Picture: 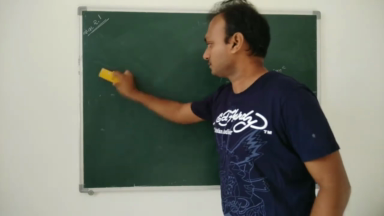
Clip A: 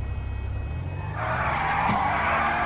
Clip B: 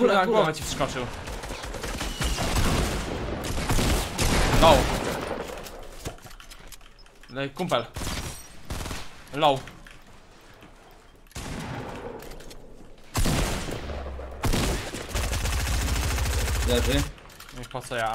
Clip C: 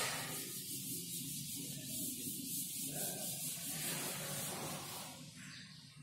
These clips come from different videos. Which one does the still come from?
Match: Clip C